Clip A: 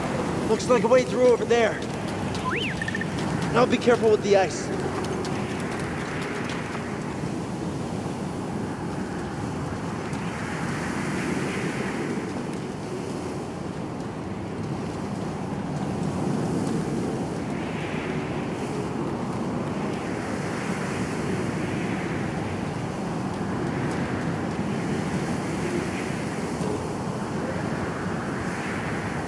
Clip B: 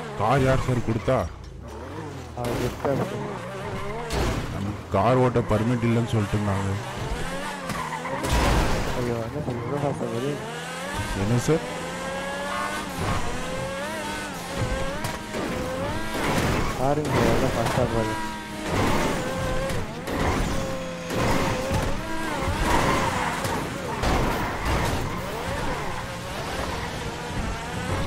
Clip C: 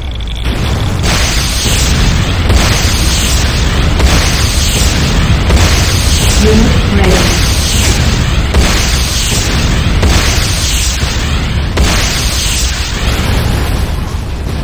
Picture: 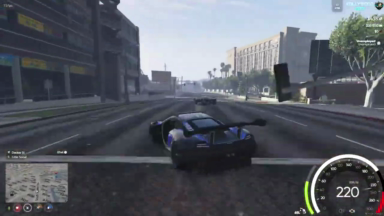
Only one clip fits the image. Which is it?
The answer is B